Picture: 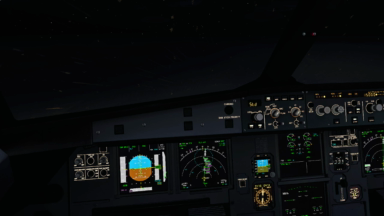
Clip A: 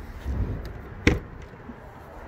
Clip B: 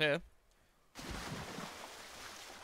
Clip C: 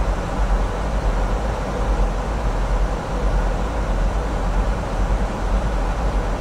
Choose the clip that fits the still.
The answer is C